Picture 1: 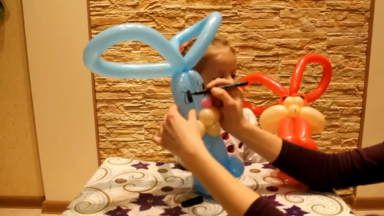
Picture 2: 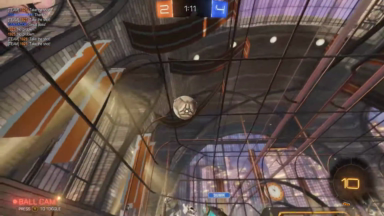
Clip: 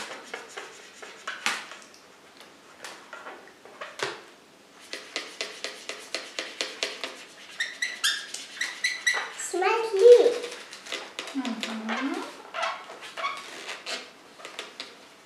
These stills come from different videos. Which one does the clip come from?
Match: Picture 1